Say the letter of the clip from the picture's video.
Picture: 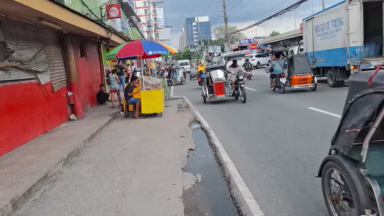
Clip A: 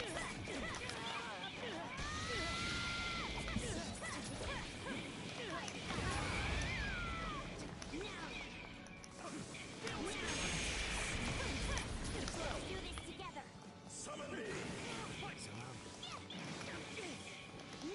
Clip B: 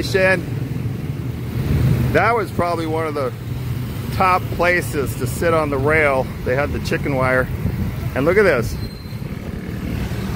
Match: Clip B